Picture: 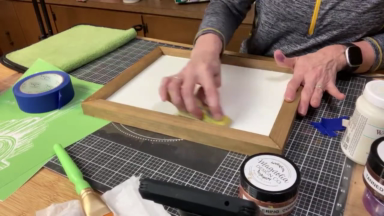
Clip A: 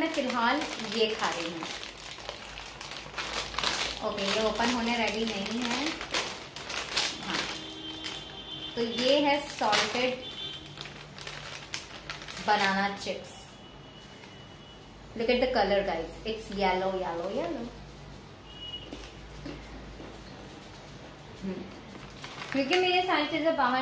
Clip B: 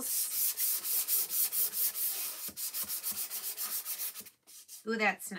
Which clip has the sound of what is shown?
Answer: B